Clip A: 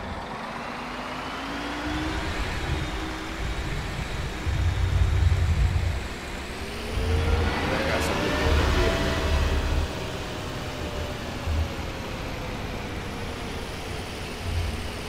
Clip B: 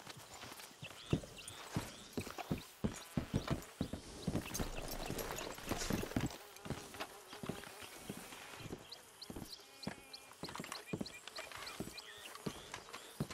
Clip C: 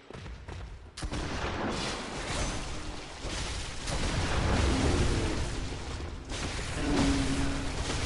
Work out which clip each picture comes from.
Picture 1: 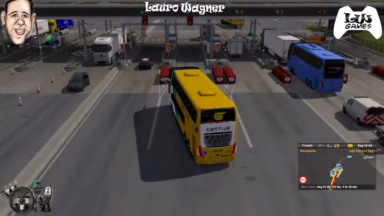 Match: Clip A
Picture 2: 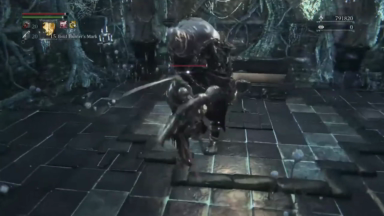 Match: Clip C